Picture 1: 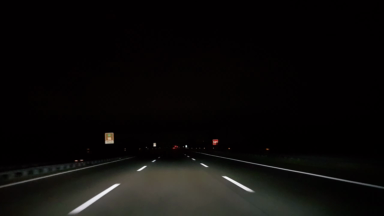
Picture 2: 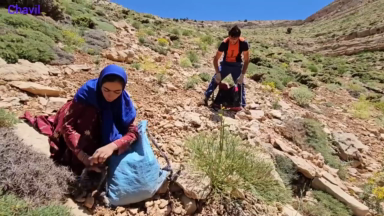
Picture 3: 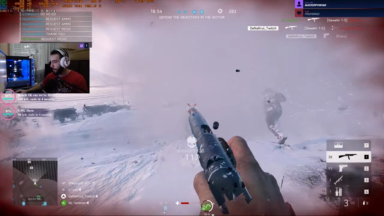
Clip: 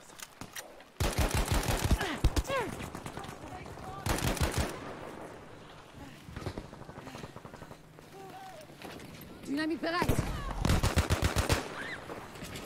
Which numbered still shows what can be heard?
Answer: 3